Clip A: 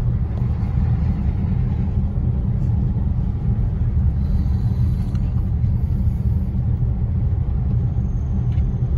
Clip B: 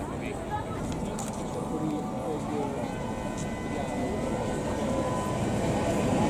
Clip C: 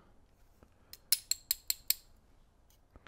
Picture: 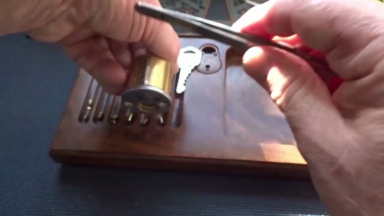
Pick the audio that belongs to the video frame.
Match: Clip C